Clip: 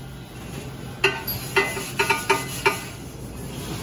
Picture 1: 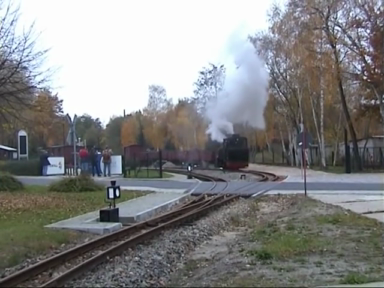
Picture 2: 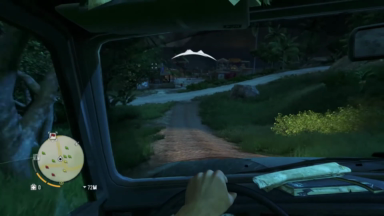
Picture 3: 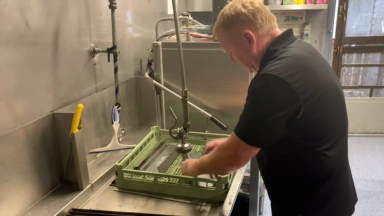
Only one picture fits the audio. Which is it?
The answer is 3